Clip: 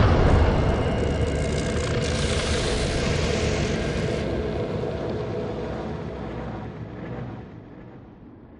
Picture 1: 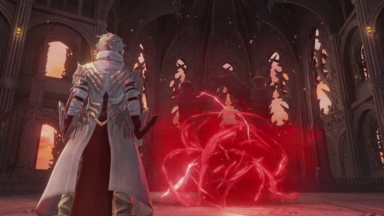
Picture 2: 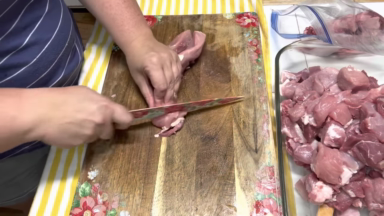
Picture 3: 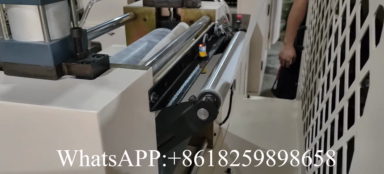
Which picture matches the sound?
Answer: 1